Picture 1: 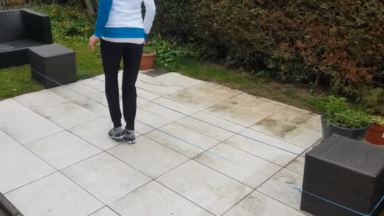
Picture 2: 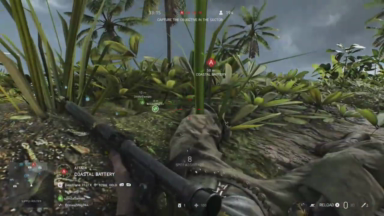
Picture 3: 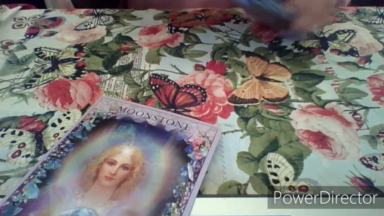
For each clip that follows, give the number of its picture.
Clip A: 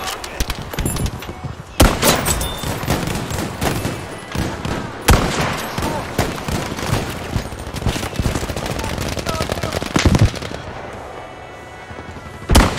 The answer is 2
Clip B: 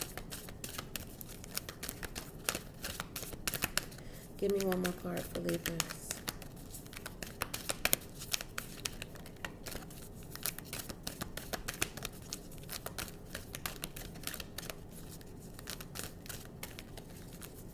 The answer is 3